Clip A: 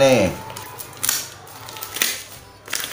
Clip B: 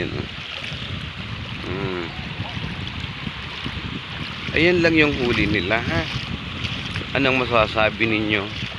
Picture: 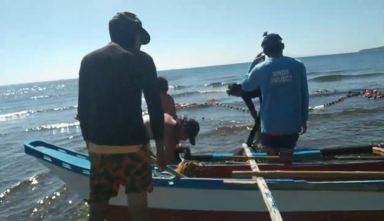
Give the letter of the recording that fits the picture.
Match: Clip B